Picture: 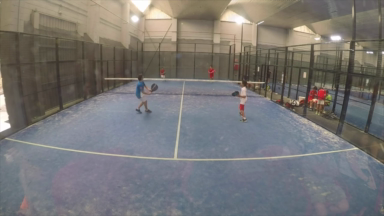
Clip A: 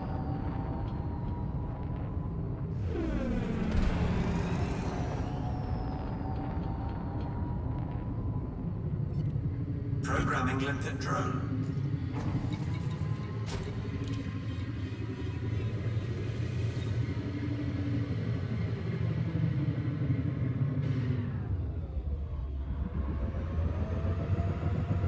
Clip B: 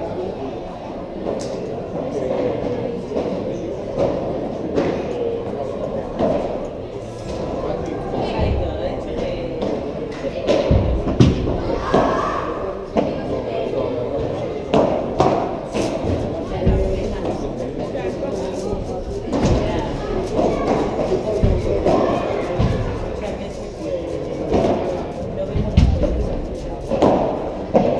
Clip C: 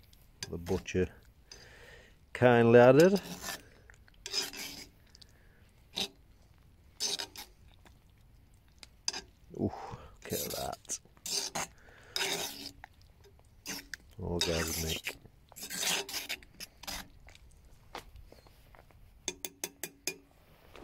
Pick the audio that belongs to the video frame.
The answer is B